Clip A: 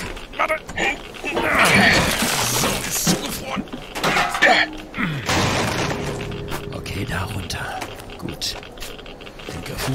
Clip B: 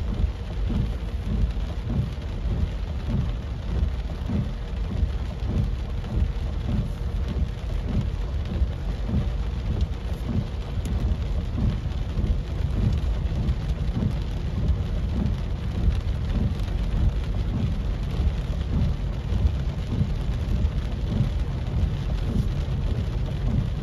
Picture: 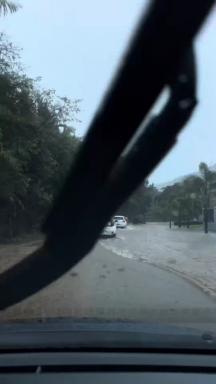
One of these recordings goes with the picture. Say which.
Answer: B